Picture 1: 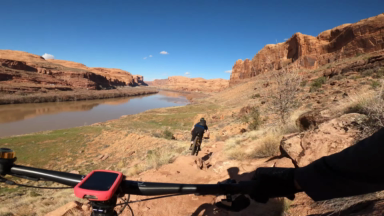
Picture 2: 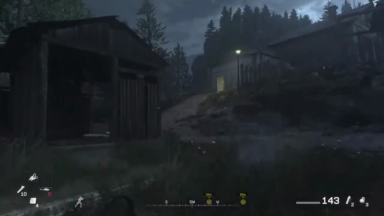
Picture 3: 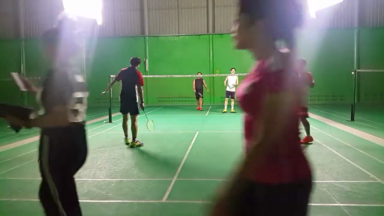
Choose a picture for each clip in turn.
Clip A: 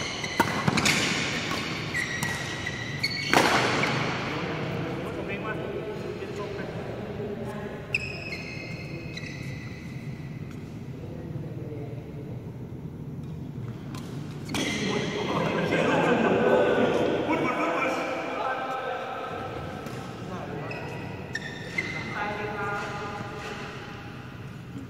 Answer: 3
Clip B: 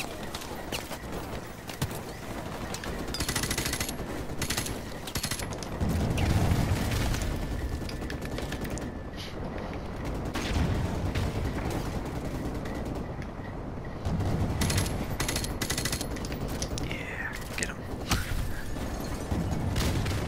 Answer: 2